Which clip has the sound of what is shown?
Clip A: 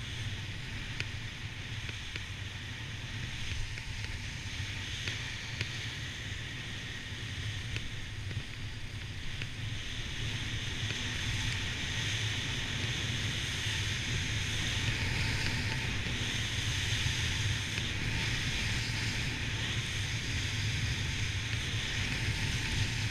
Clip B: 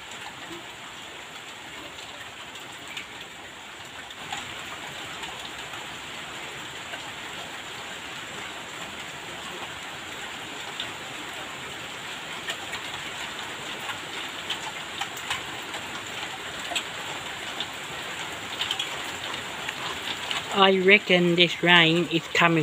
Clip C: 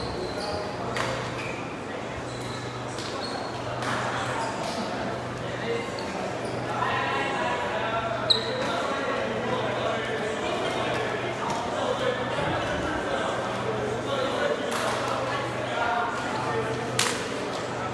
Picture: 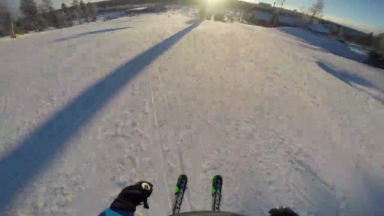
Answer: A